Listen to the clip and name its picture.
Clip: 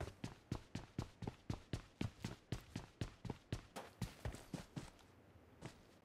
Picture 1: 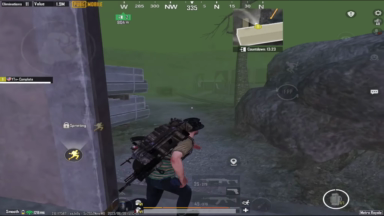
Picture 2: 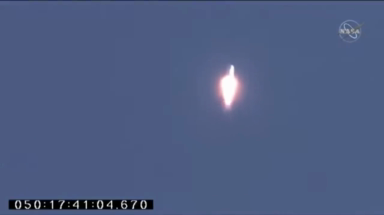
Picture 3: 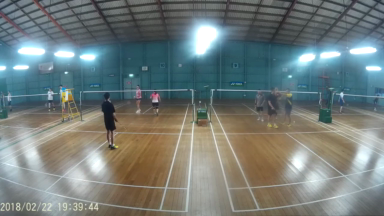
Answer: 1